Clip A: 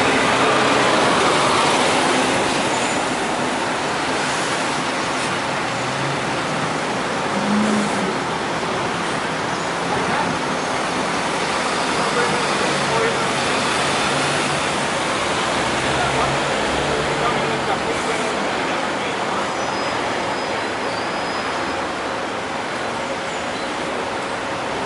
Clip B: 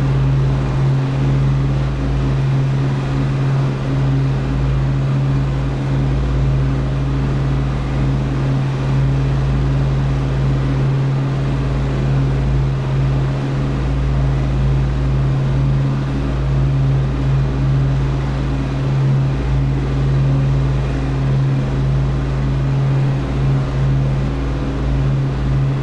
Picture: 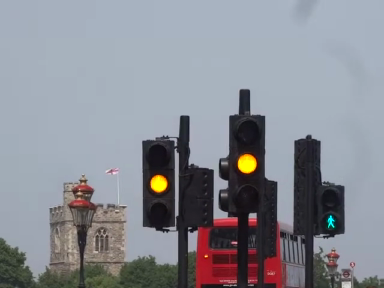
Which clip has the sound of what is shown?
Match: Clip A